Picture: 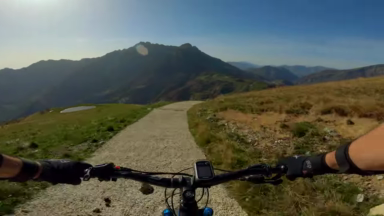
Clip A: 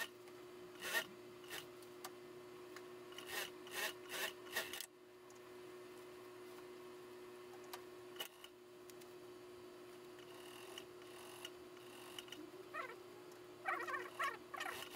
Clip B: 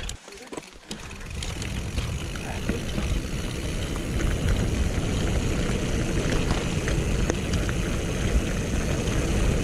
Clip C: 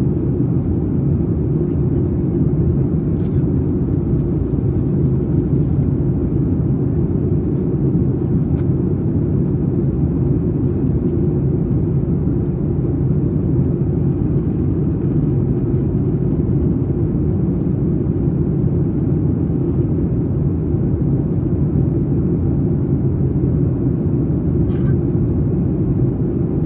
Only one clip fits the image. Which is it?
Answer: B